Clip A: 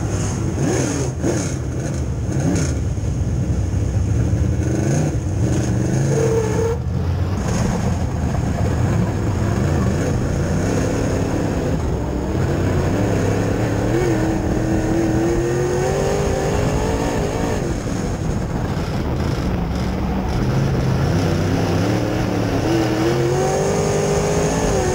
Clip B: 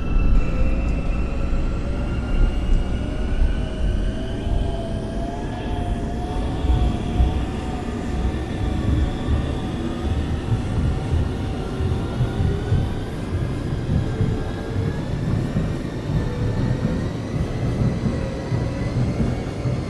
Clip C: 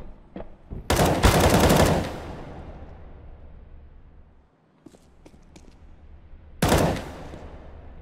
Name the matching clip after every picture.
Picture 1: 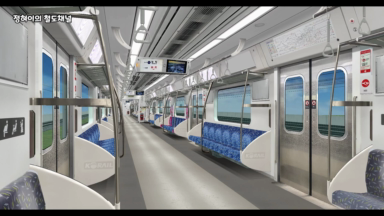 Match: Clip B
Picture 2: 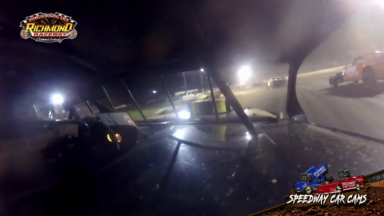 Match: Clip A